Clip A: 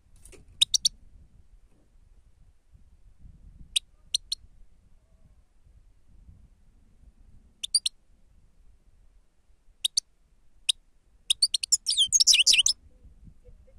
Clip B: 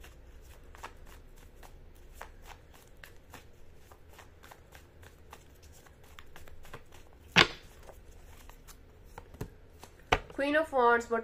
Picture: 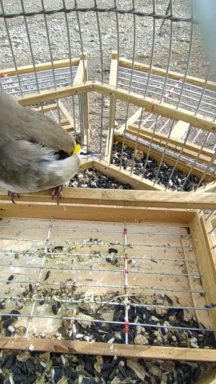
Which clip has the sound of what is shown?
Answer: A